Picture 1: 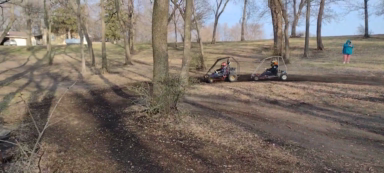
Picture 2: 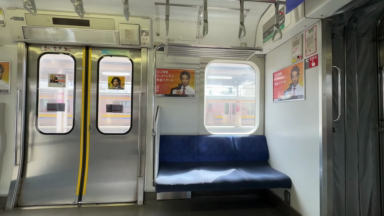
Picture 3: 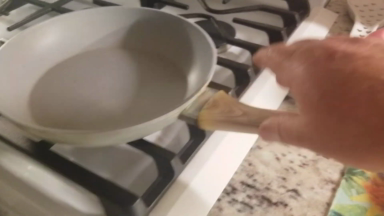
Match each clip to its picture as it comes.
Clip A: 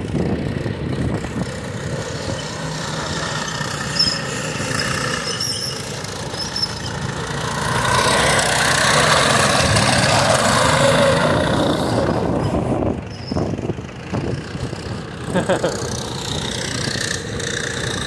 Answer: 1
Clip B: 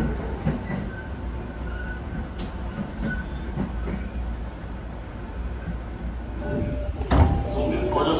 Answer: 2